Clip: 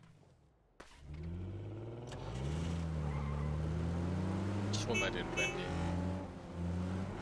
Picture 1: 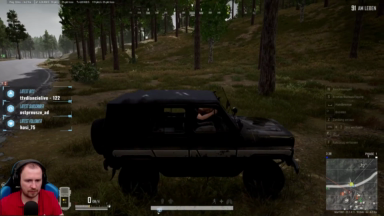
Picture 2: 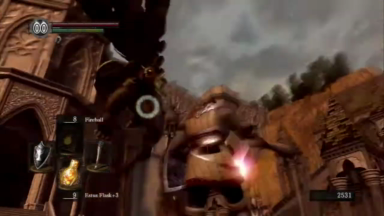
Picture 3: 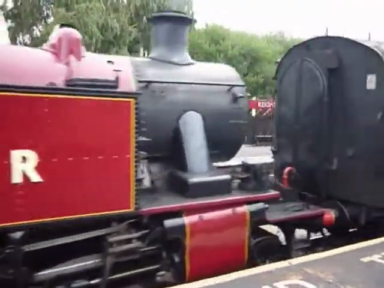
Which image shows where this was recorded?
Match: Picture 1